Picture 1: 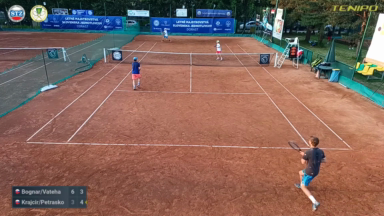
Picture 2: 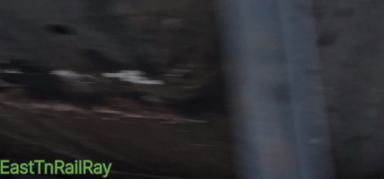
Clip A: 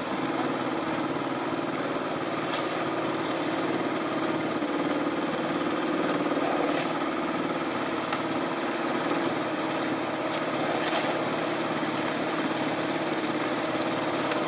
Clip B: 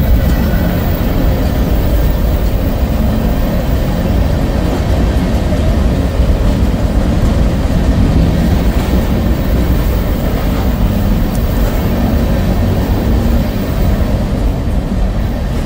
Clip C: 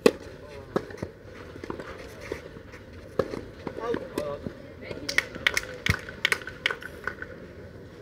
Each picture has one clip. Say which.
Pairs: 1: C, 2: B